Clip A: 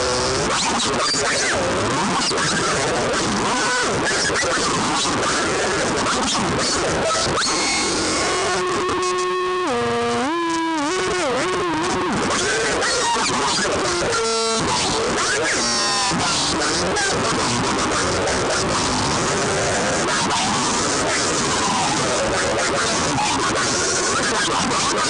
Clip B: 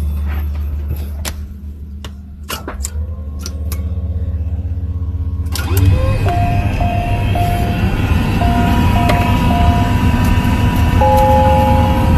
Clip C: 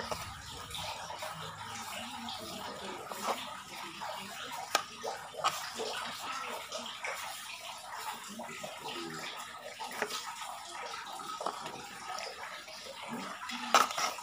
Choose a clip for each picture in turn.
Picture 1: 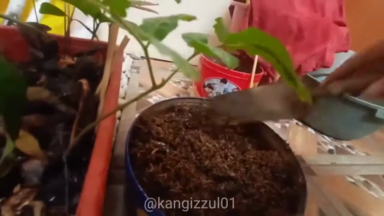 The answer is C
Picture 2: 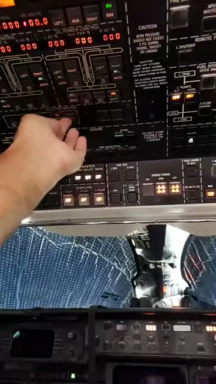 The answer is B